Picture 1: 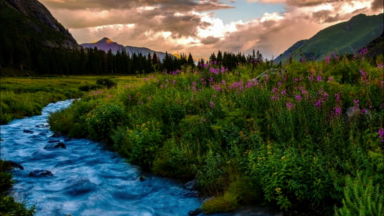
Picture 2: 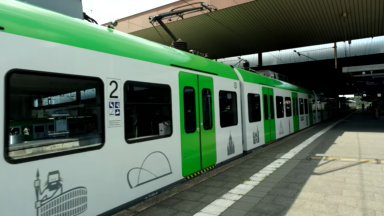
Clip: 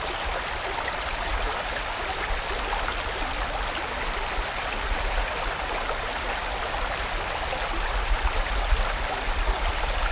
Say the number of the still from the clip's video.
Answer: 1